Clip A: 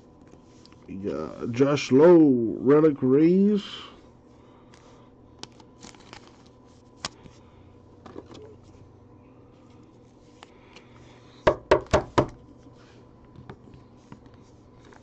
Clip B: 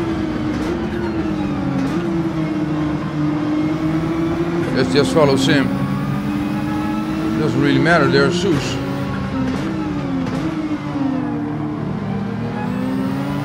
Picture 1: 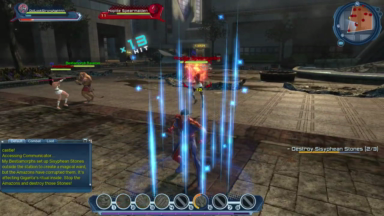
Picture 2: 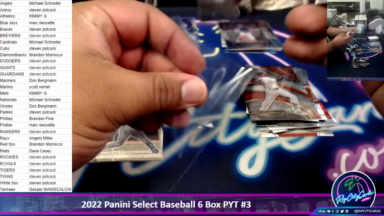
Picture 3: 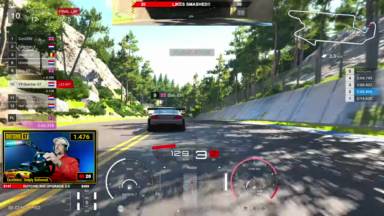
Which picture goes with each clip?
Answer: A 2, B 3